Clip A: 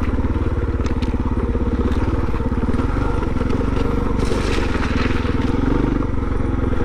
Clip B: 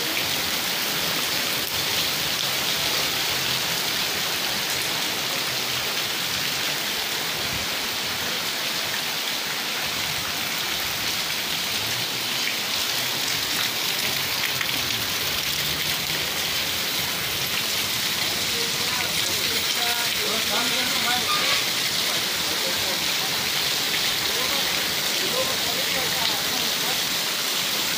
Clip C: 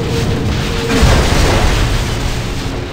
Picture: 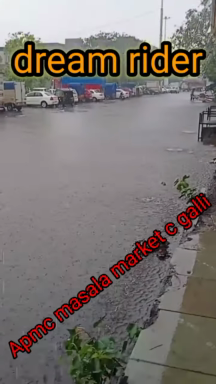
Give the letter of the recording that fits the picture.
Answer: B